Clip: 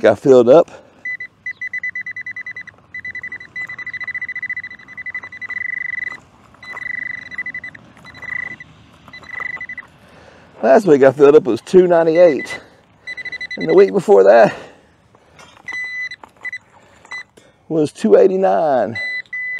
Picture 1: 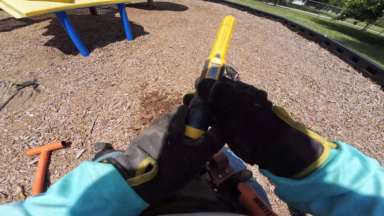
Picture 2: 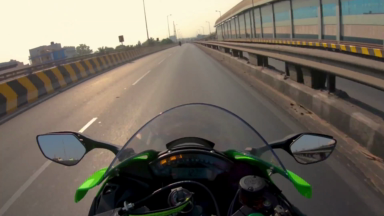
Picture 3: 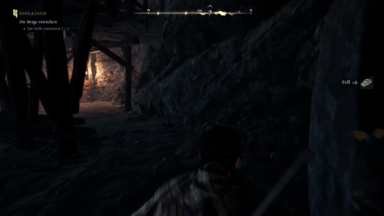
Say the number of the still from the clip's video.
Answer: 1